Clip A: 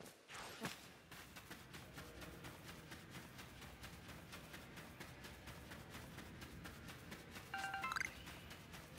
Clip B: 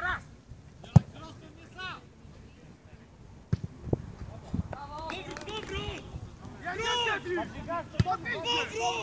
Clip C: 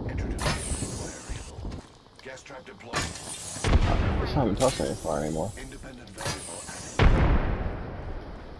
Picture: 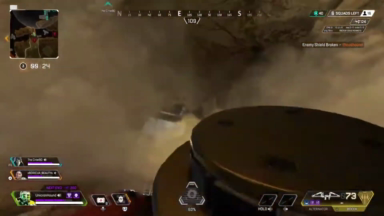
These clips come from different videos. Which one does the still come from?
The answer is C